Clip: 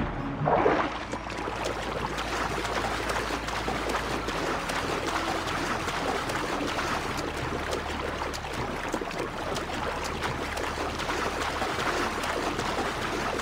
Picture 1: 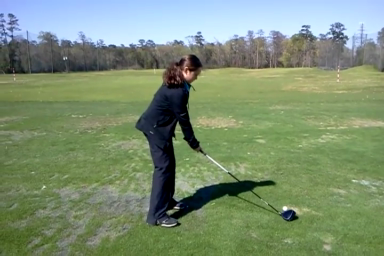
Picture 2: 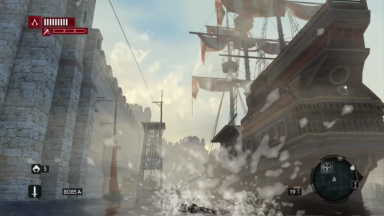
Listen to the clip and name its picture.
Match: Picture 2